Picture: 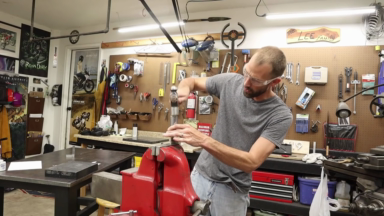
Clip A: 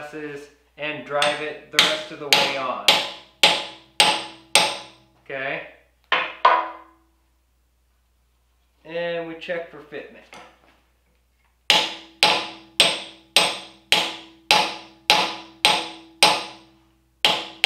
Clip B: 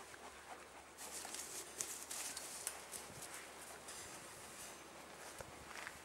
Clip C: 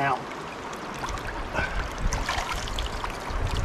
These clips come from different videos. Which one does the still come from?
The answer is A